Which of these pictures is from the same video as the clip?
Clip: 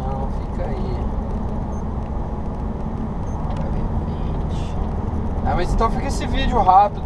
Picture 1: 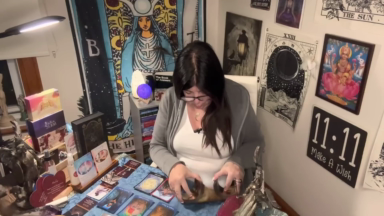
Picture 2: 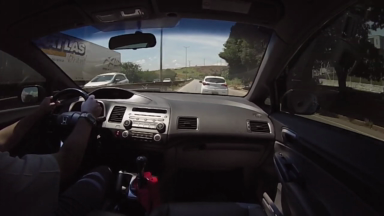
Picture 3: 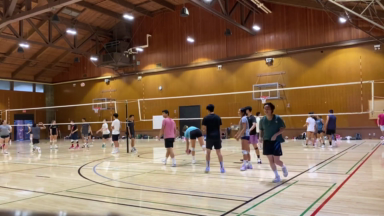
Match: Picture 2